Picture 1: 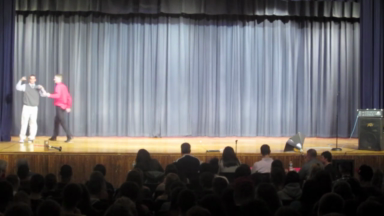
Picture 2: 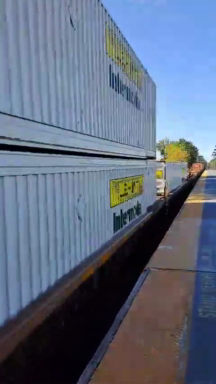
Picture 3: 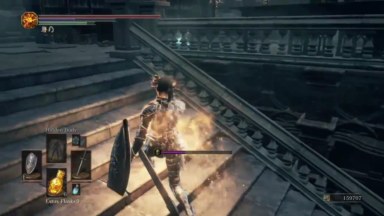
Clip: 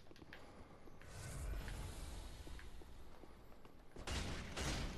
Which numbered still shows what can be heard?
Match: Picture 3